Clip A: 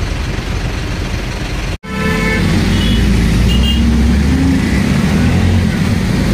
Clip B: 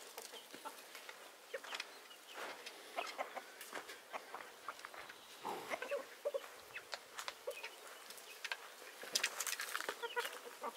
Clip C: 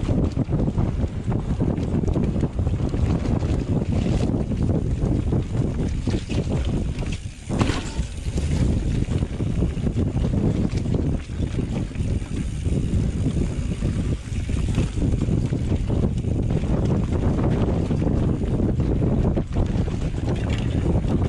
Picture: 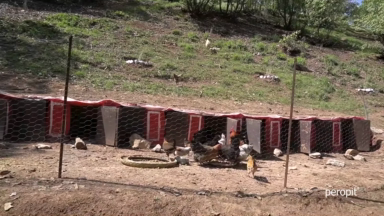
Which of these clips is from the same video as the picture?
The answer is B